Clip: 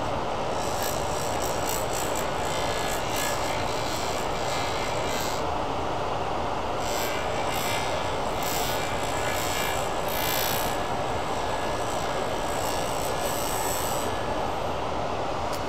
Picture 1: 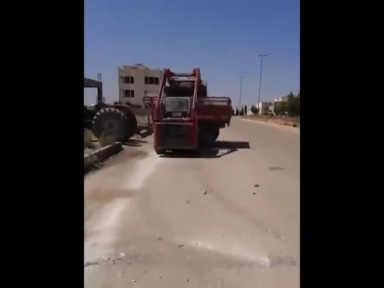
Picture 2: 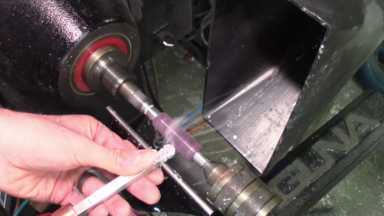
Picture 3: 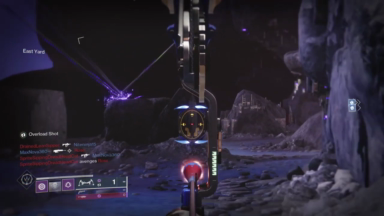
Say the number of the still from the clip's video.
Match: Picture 2